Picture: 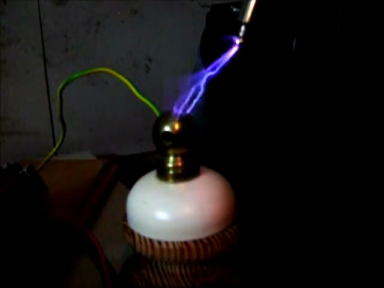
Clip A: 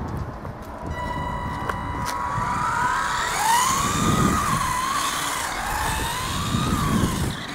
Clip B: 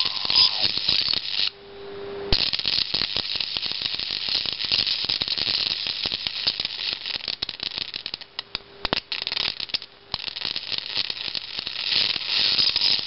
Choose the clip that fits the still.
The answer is B